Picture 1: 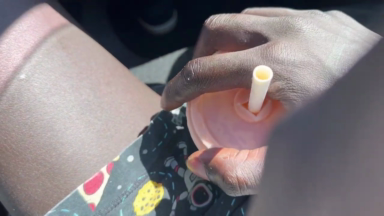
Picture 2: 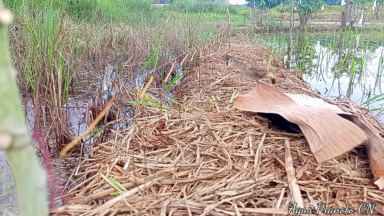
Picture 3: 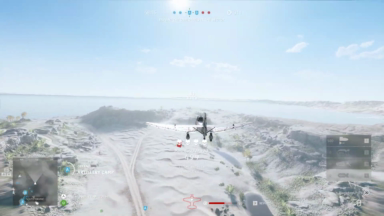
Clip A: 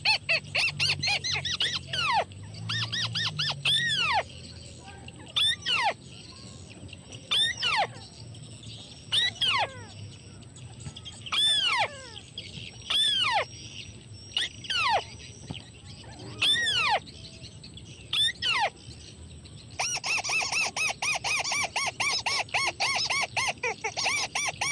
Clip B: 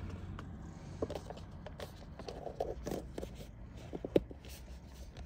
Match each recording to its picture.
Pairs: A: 2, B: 1